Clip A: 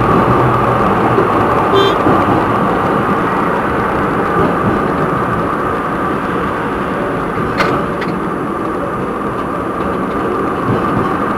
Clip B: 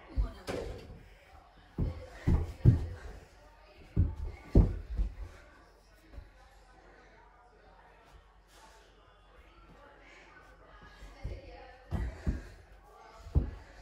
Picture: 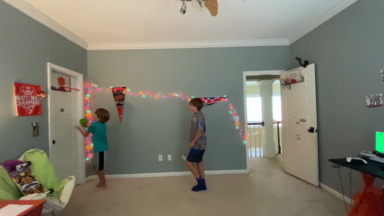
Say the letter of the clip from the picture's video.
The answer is B